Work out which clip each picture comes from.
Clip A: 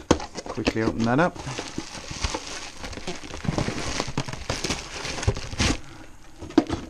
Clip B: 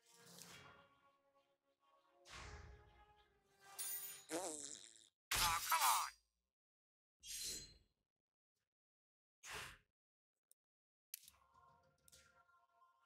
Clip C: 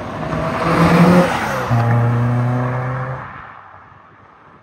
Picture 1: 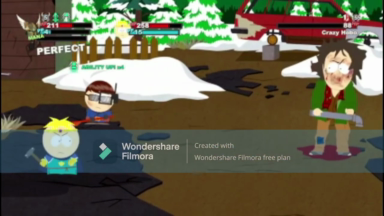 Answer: B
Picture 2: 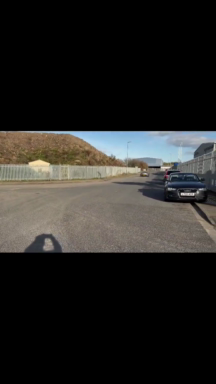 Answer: C